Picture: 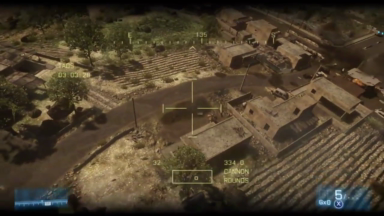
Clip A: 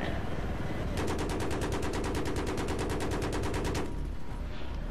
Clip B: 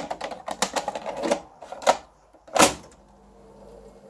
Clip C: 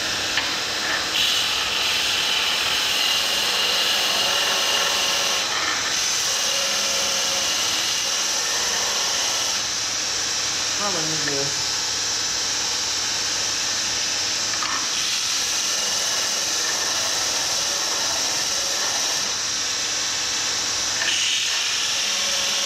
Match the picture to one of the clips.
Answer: A